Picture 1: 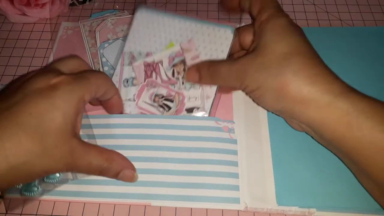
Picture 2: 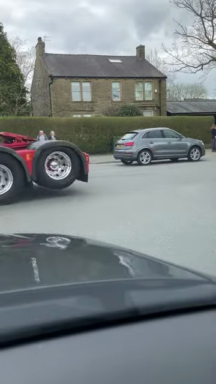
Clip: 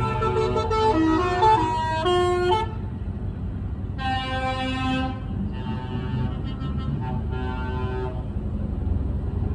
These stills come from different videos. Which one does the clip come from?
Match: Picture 2